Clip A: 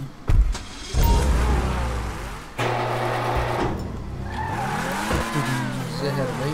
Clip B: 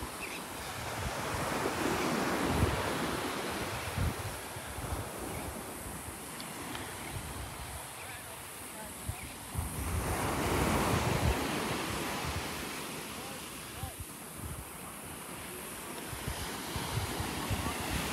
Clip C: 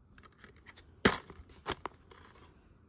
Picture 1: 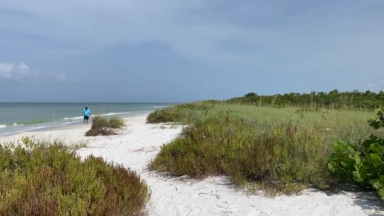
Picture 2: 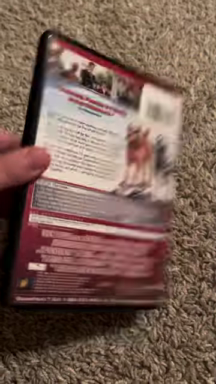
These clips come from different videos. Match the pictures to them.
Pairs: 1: B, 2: C